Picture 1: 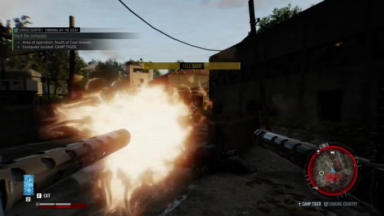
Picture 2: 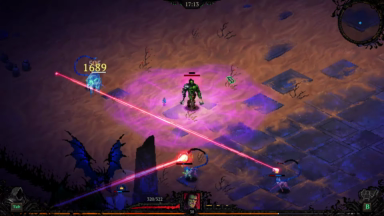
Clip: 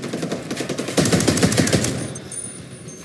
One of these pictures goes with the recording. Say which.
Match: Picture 1